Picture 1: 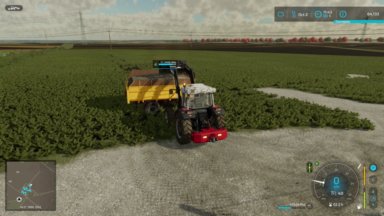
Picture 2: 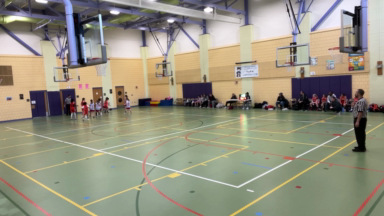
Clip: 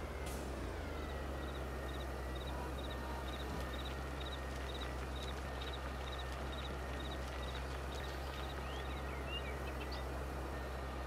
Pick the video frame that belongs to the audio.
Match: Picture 1